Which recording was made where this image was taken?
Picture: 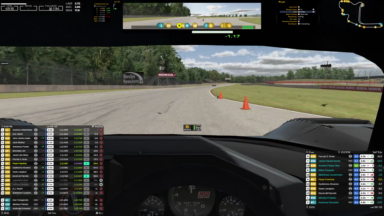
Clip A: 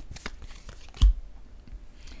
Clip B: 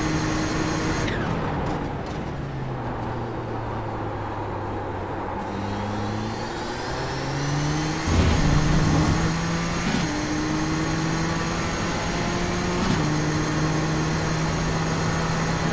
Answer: B